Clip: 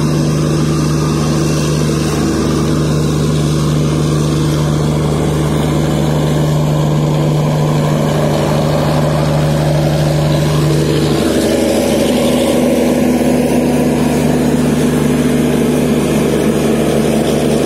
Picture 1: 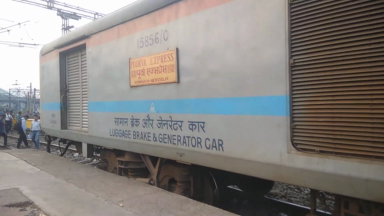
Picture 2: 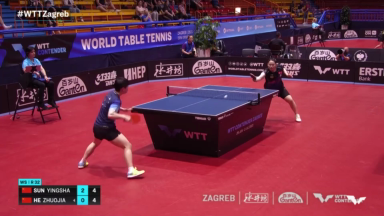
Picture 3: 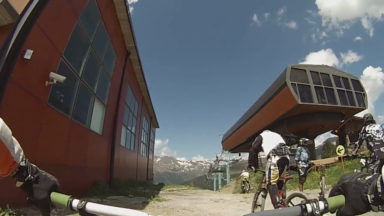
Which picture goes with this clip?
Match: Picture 1